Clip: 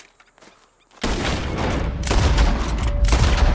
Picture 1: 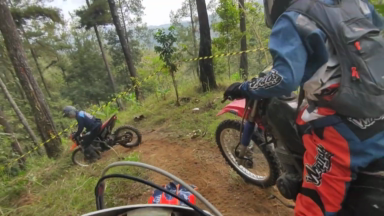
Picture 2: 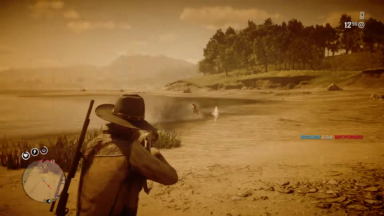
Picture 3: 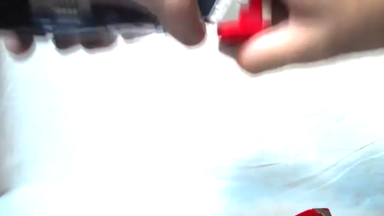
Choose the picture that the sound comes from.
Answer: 2